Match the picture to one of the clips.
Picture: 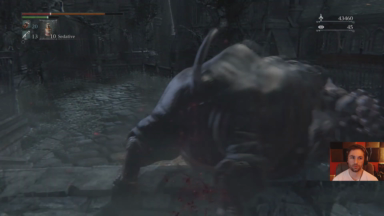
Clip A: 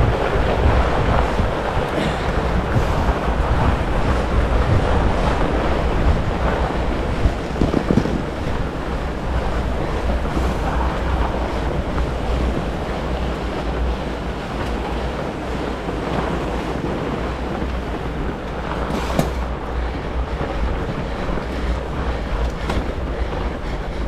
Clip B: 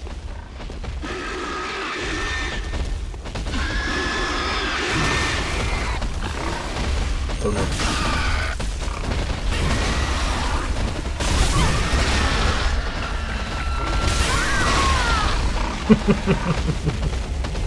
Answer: B